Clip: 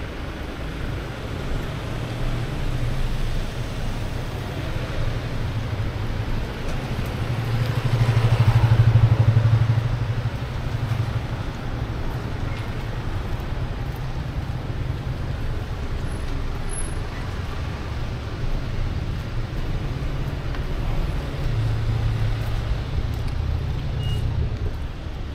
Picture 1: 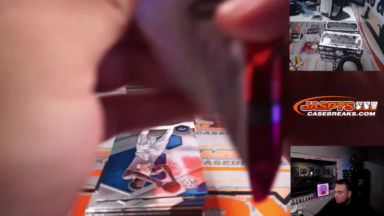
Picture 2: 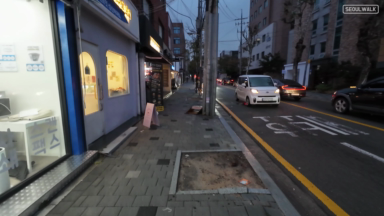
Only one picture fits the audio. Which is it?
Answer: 2